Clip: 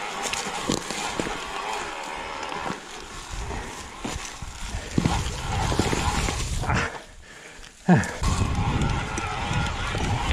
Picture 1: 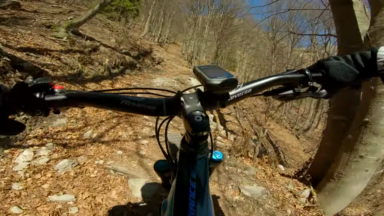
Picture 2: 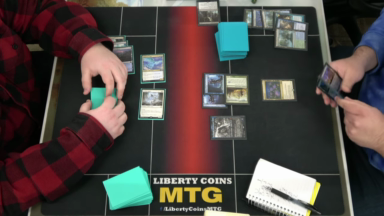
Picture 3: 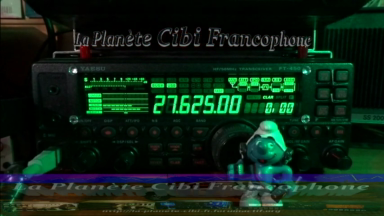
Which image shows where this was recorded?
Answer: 1